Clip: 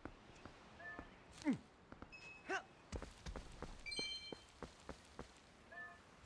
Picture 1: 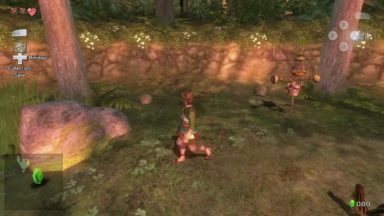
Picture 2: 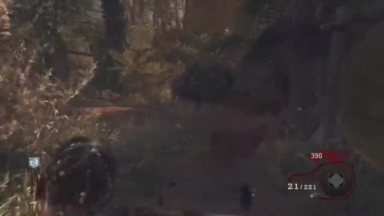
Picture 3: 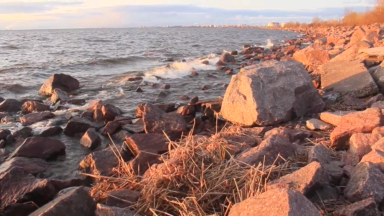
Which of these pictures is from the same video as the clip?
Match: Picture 1